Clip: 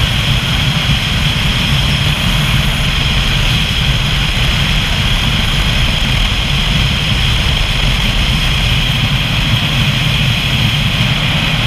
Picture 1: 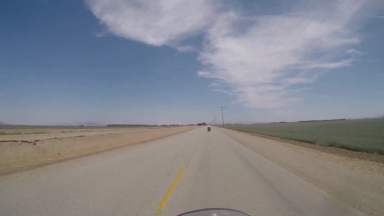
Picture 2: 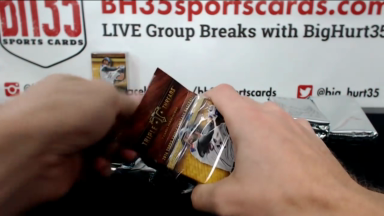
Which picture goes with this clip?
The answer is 1